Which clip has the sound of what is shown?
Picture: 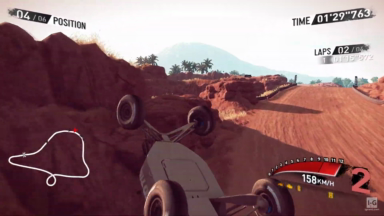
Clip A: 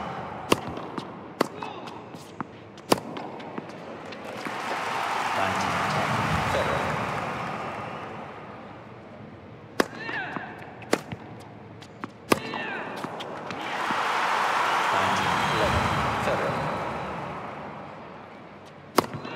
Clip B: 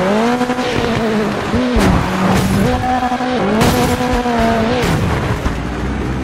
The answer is B